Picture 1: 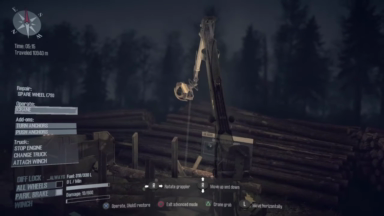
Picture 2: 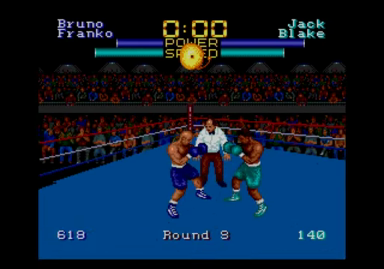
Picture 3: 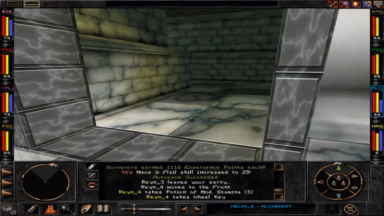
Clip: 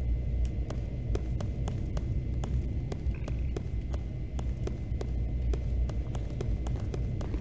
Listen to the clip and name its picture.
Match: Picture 3